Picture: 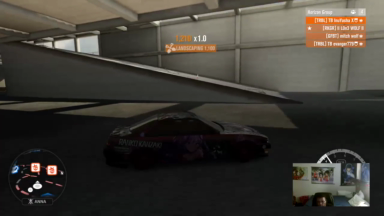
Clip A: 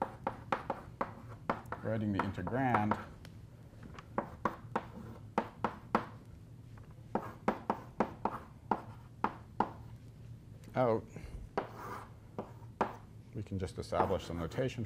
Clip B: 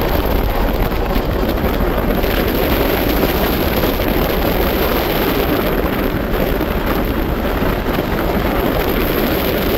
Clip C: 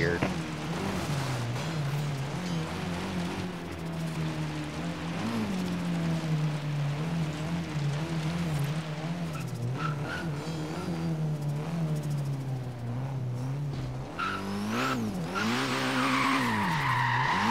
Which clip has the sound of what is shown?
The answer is C